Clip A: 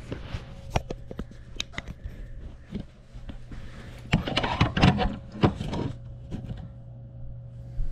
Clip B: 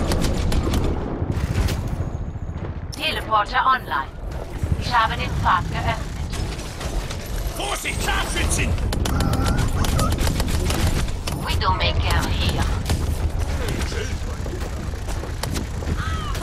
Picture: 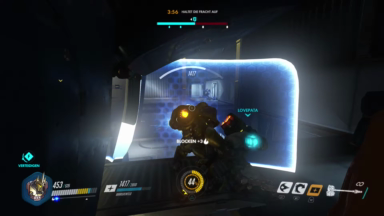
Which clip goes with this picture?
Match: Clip B